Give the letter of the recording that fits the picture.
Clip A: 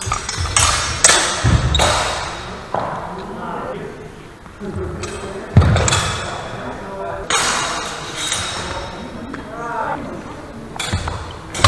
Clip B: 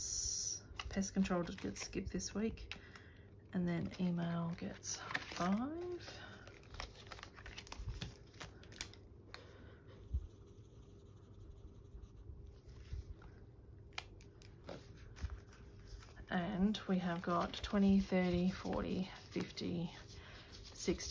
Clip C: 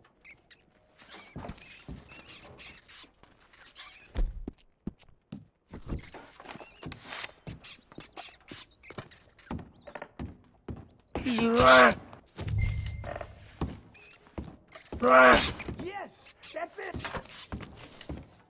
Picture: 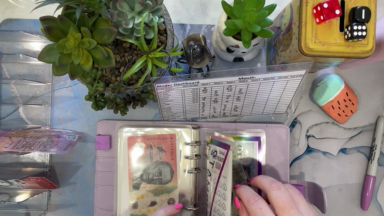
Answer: B